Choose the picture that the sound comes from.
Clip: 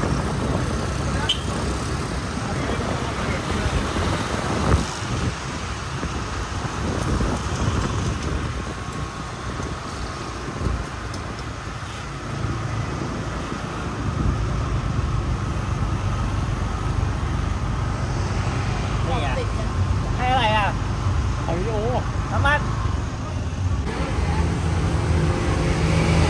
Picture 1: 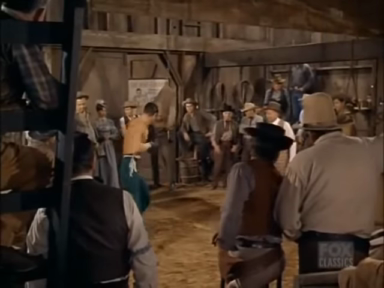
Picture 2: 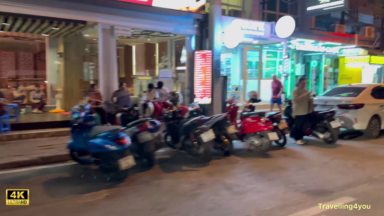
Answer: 2